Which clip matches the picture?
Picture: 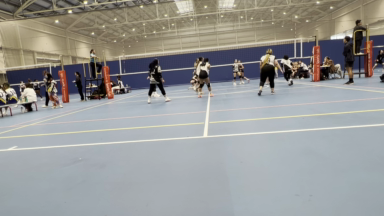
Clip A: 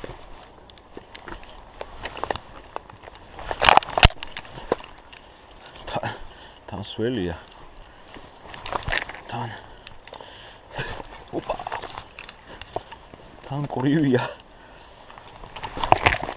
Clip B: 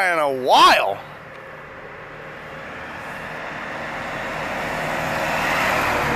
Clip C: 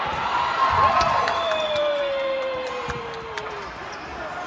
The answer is C